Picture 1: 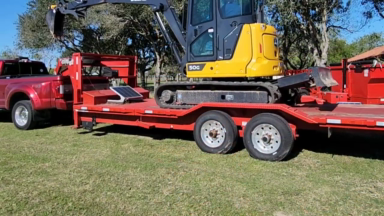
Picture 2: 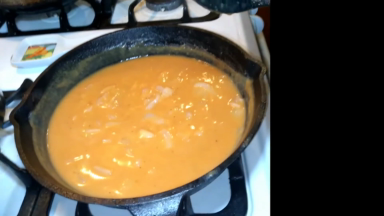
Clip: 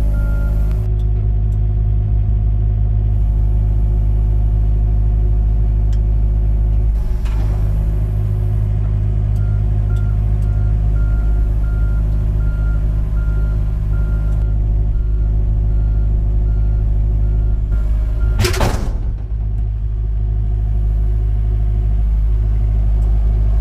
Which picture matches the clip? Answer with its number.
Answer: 1